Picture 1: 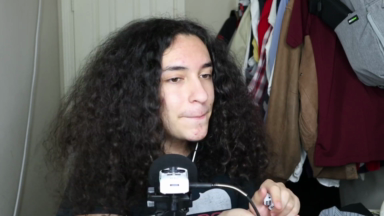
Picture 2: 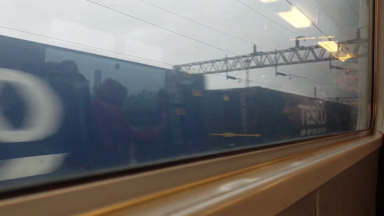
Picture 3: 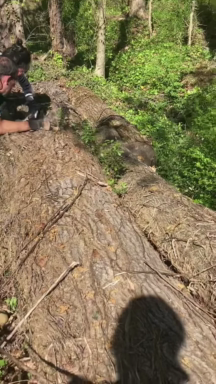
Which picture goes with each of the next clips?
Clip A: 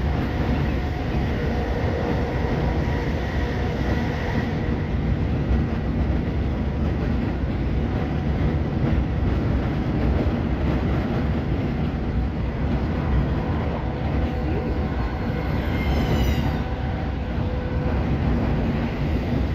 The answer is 2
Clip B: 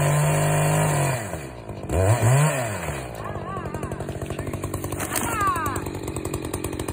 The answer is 3